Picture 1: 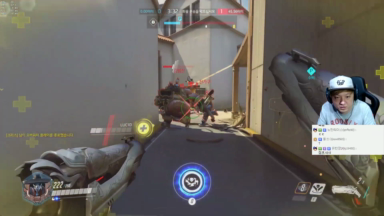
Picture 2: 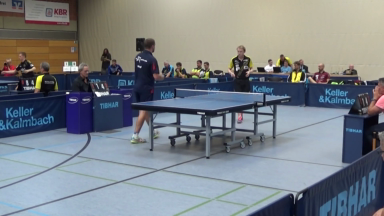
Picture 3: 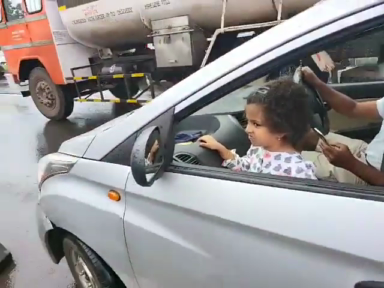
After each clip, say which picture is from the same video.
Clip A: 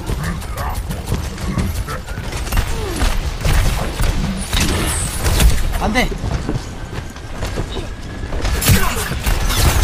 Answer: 1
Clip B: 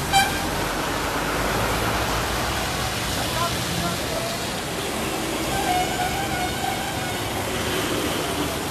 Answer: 3